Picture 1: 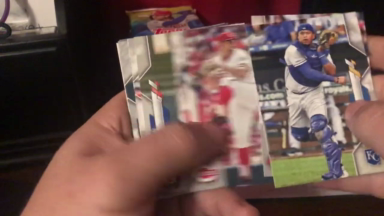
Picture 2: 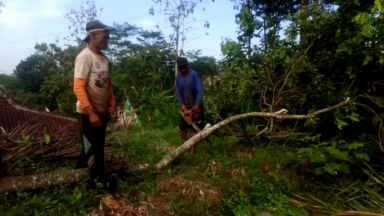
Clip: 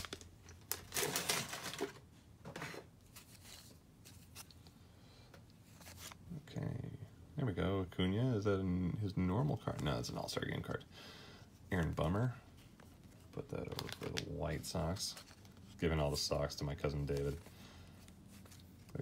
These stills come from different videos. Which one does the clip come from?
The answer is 1